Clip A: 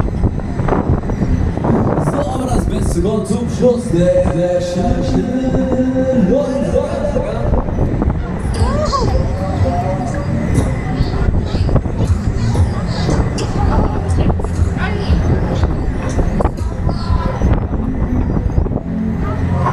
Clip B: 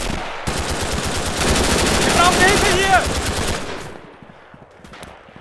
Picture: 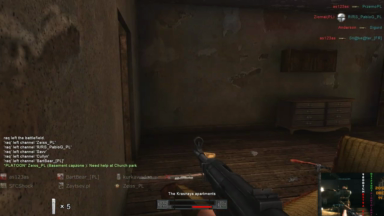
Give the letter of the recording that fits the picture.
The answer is B